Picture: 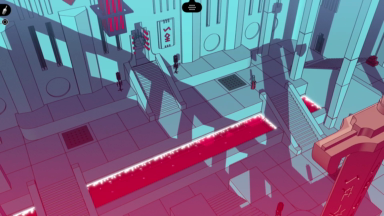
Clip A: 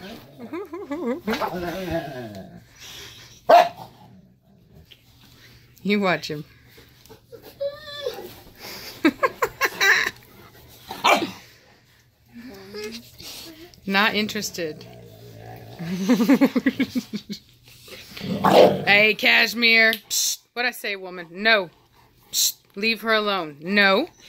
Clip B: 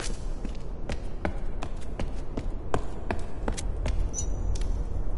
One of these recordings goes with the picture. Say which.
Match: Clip B